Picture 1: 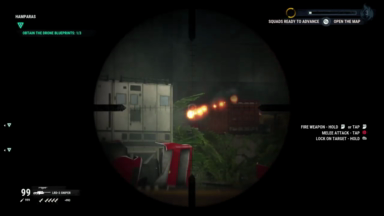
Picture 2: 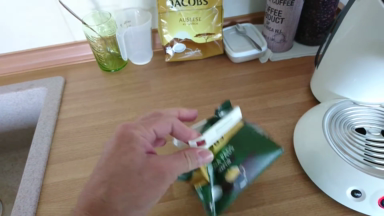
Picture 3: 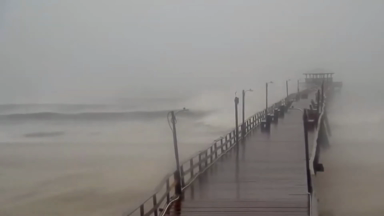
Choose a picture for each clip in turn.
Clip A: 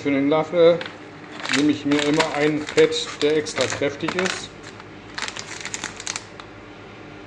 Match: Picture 2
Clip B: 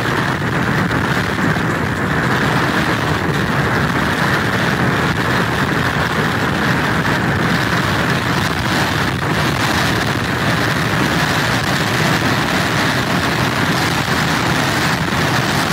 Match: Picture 3